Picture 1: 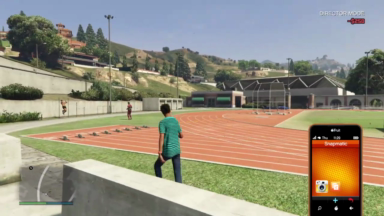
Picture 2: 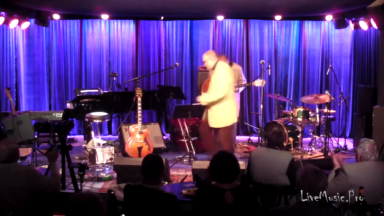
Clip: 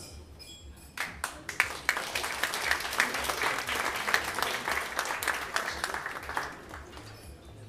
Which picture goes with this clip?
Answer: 2